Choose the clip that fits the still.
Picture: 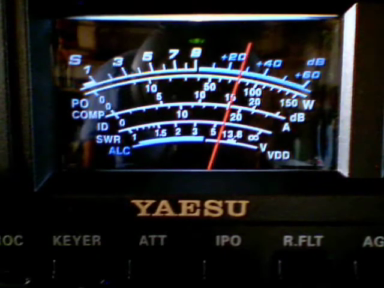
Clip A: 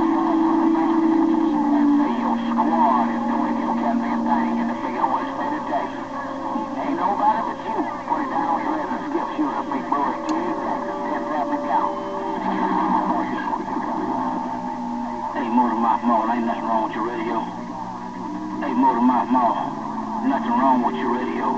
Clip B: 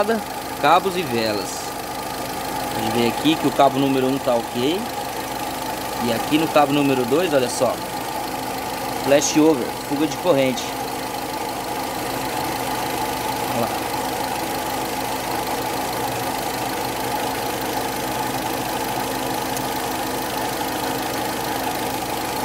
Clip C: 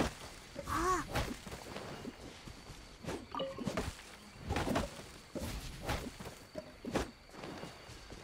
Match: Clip A